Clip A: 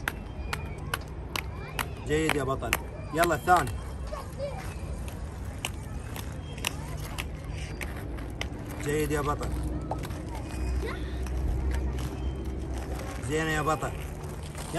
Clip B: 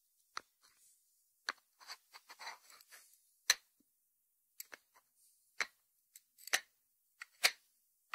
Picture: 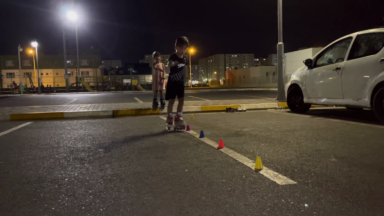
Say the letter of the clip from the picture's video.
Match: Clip A